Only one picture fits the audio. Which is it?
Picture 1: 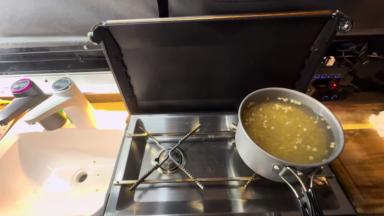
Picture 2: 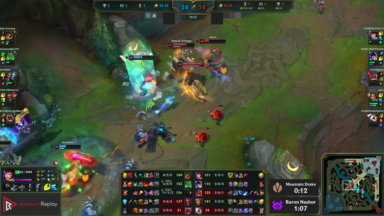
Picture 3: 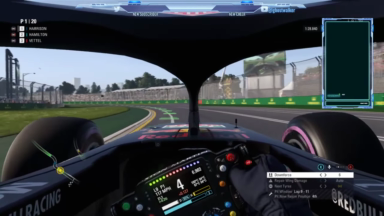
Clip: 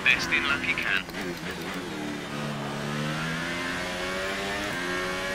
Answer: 3